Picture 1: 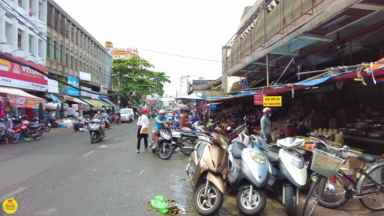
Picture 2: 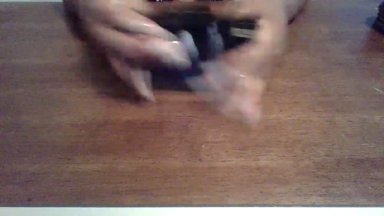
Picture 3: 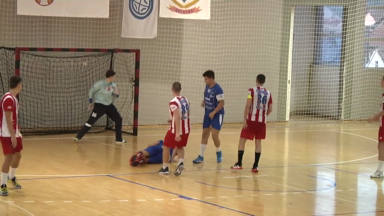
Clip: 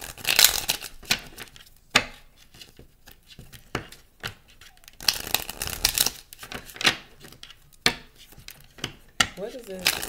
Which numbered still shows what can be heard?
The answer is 2